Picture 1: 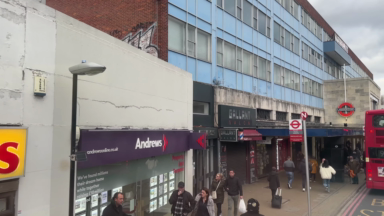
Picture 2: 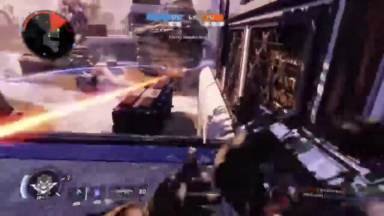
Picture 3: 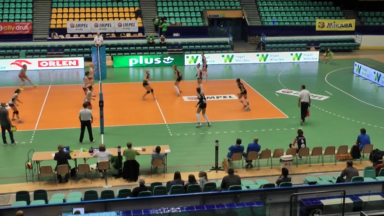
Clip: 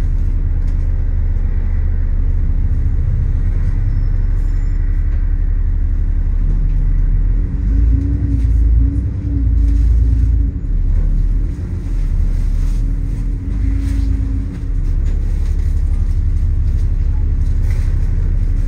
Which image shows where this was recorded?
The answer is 1